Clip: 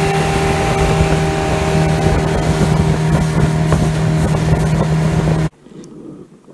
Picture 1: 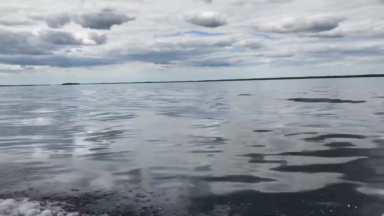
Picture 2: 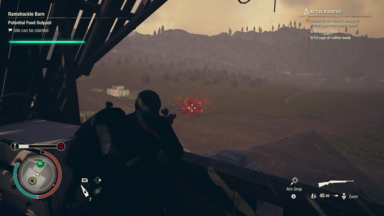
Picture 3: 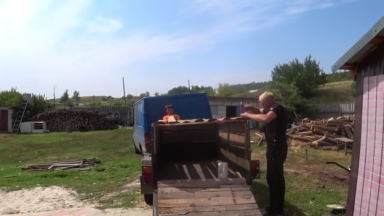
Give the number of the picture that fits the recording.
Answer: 1